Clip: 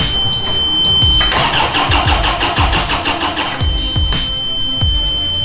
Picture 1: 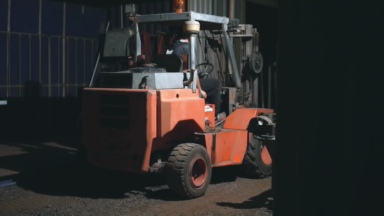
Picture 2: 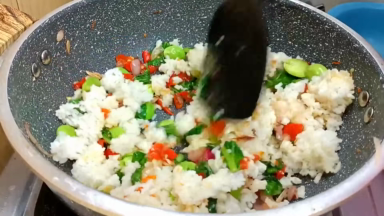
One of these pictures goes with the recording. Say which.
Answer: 1